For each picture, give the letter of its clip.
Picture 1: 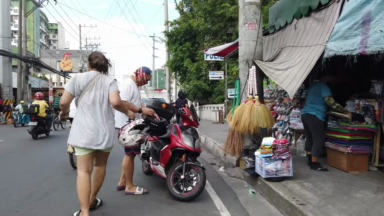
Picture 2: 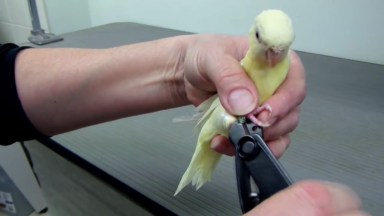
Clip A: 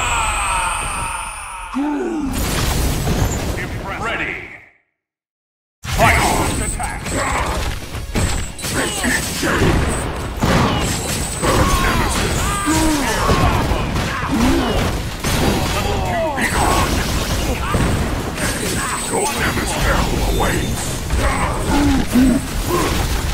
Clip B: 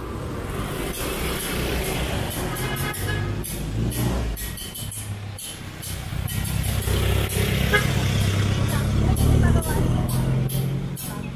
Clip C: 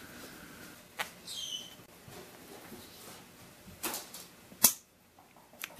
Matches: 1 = B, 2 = C